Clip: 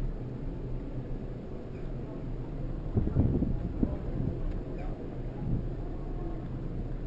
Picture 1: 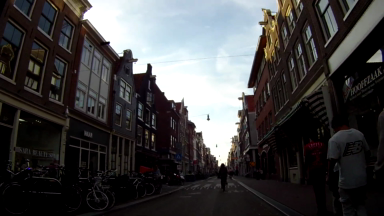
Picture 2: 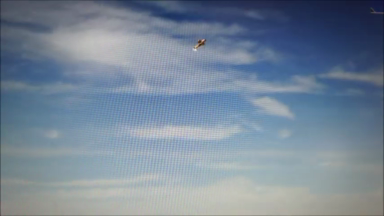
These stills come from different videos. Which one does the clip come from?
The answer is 1